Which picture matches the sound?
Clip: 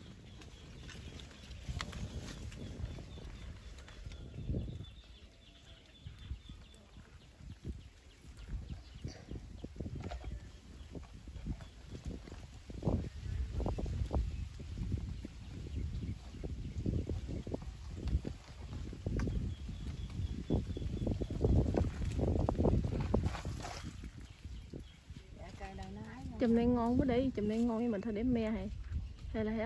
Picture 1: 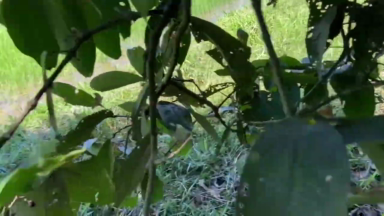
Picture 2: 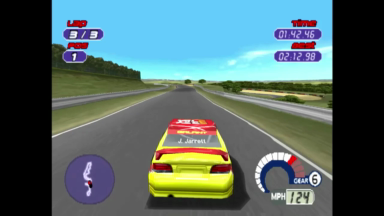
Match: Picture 1